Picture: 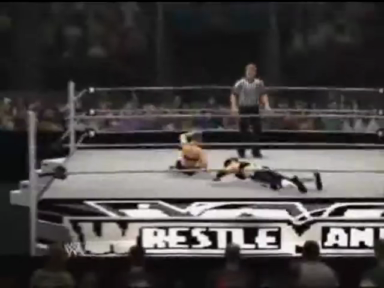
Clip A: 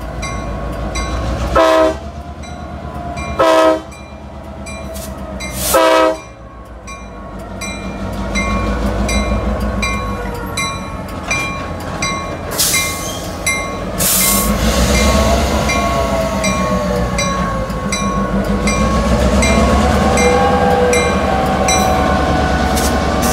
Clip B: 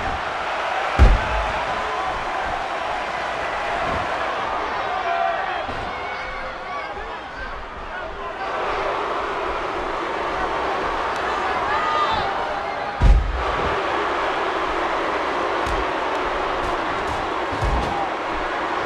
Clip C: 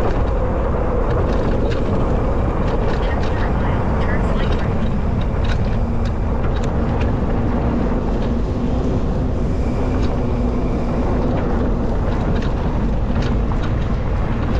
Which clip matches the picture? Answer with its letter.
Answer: B